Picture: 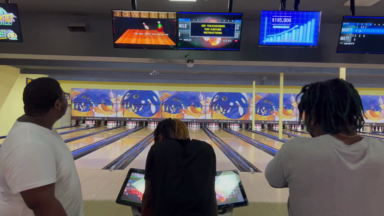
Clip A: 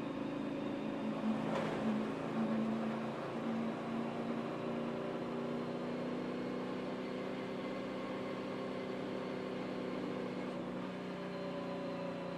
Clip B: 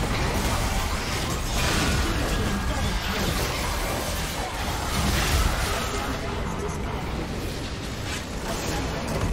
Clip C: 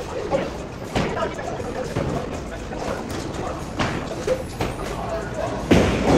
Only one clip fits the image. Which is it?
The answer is C